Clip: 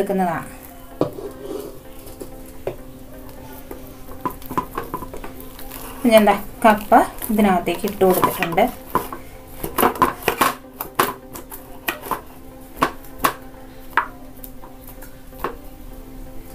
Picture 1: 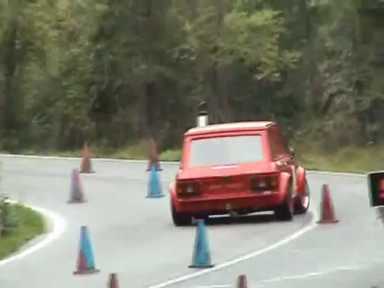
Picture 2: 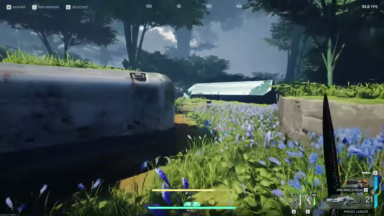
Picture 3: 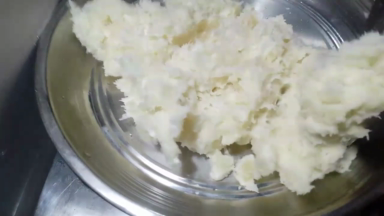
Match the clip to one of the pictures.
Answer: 3